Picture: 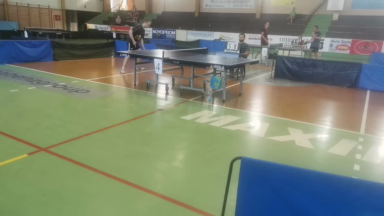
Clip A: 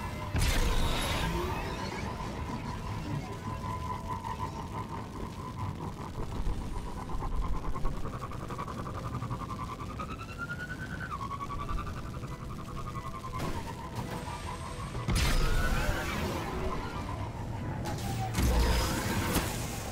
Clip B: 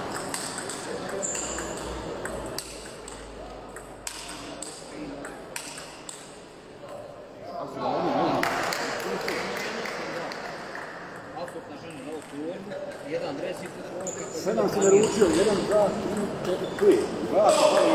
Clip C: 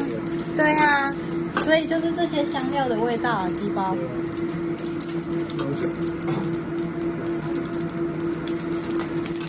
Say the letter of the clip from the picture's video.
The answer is B